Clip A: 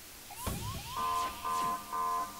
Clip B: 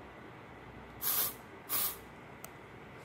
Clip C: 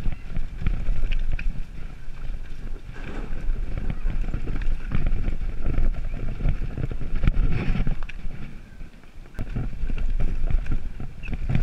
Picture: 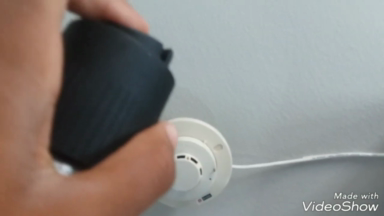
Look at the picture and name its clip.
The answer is B